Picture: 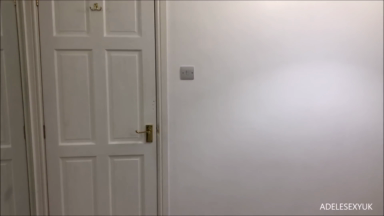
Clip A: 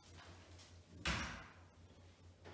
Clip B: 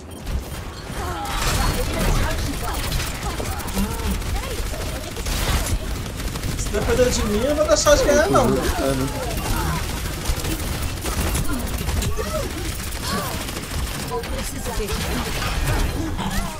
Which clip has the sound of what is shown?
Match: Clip A